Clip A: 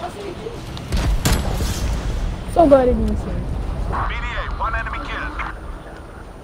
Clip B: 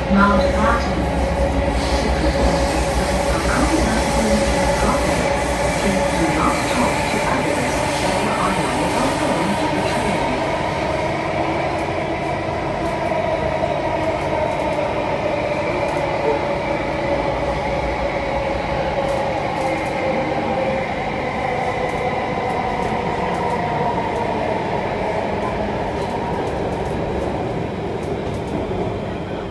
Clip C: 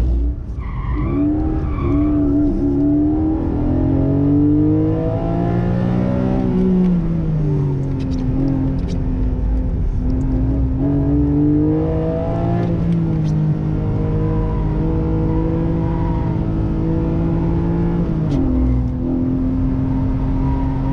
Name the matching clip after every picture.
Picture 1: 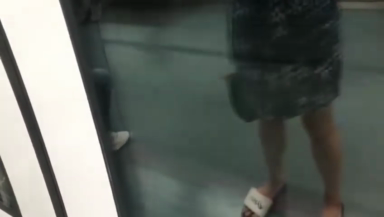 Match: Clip B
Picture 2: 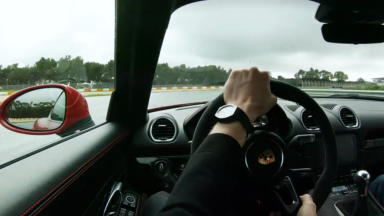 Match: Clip C